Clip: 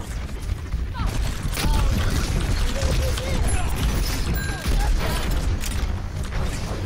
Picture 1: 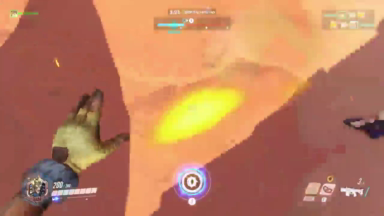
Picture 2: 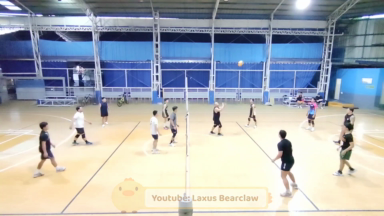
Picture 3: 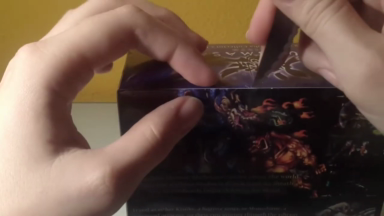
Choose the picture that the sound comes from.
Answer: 1